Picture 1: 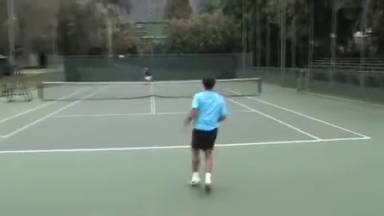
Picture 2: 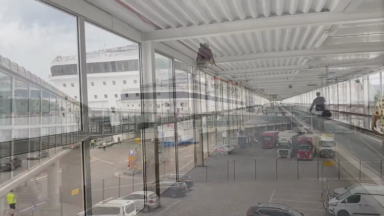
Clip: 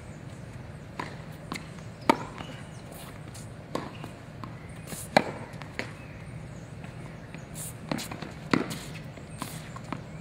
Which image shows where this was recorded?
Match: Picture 1